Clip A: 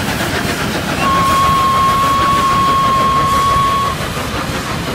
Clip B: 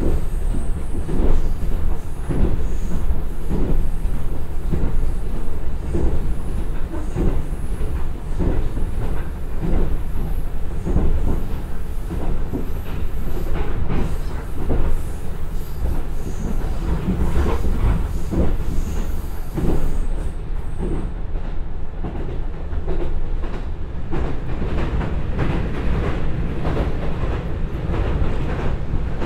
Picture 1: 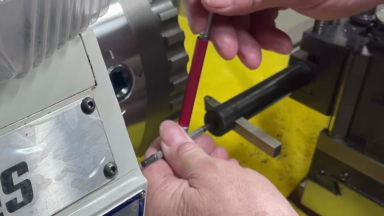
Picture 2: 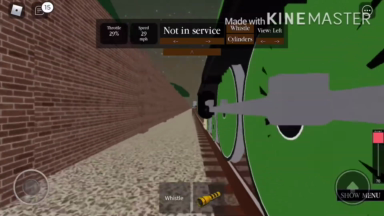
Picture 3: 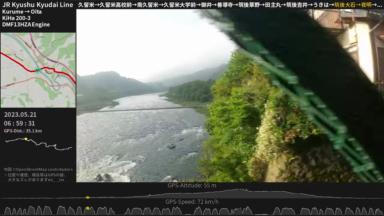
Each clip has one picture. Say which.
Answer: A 2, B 3